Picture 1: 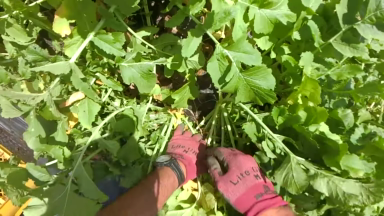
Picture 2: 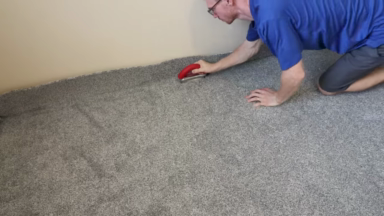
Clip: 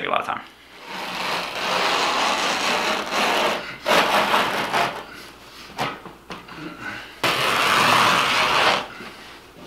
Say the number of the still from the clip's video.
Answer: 2